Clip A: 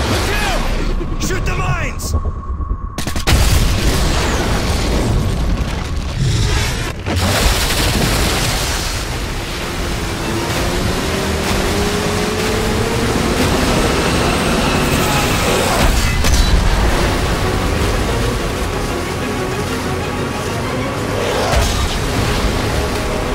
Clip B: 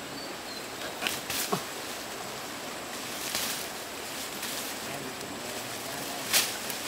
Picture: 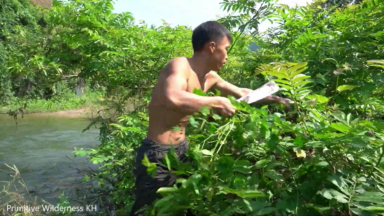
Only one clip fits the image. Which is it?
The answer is B